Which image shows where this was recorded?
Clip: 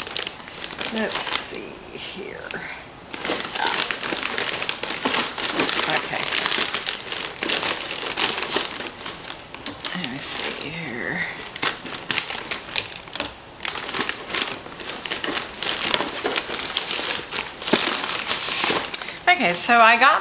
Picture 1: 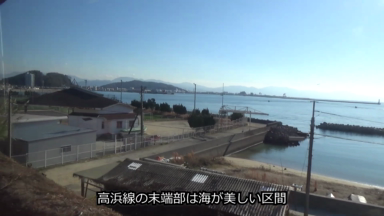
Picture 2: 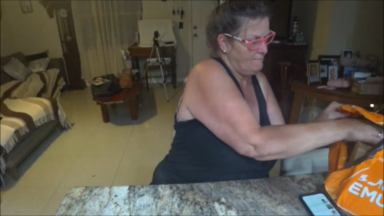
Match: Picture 2